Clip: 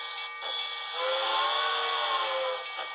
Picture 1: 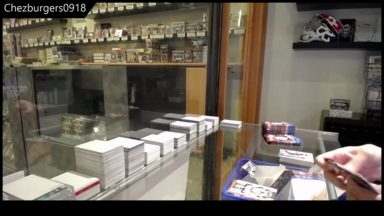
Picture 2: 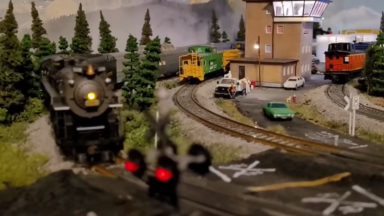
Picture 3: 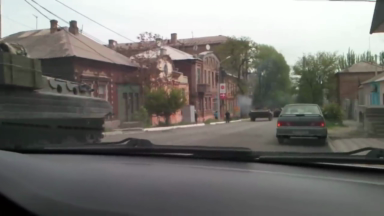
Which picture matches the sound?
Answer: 2